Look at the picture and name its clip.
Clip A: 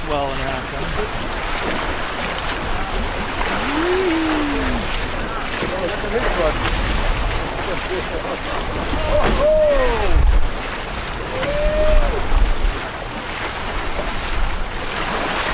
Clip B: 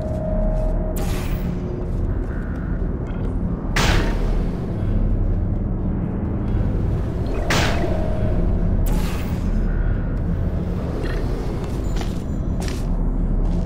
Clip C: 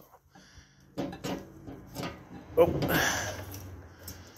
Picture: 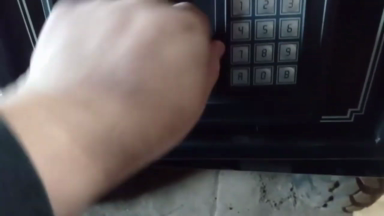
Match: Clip C